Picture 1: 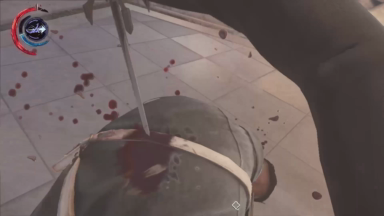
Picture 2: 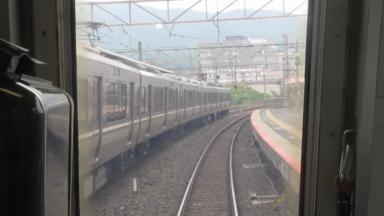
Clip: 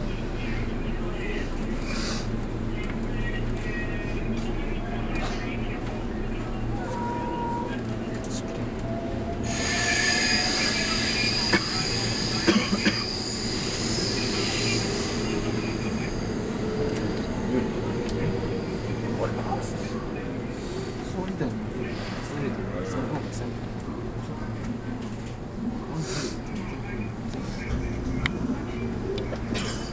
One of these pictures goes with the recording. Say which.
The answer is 2